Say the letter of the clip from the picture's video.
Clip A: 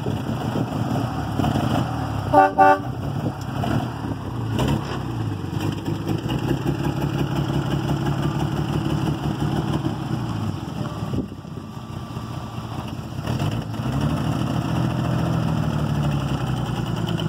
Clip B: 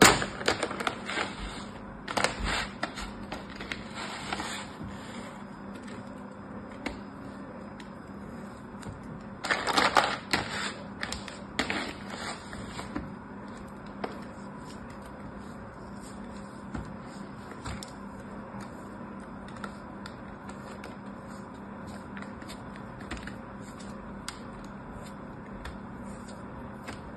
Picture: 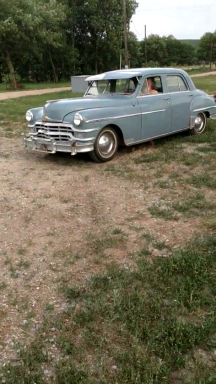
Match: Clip A